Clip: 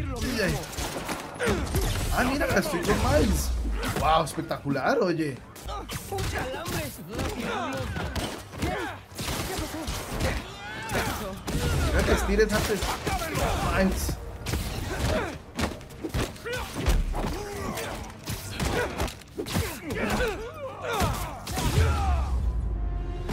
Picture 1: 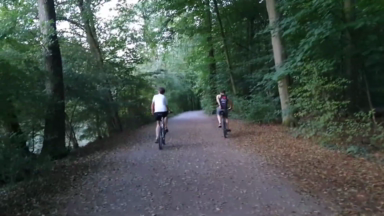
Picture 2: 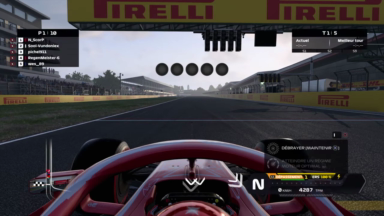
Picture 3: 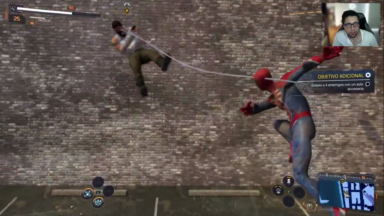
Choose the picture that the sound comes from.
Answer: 3